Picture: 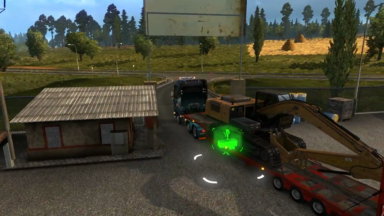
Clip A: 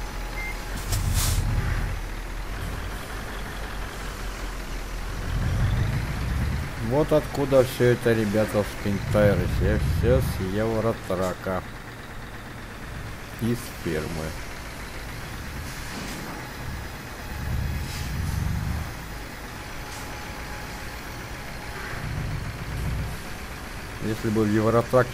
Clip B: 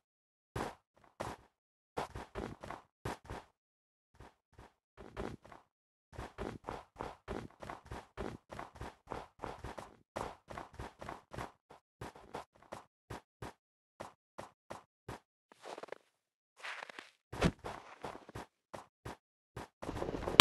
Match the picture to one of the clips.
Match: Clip A